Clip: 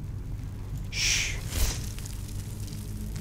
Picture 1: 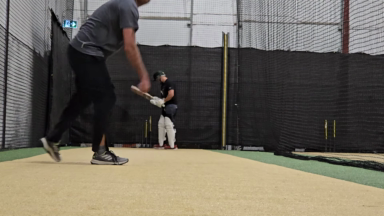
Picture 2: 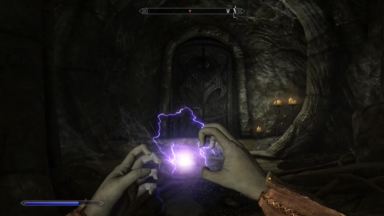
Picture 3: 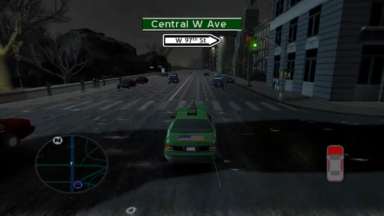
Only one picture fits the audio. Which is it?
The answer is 2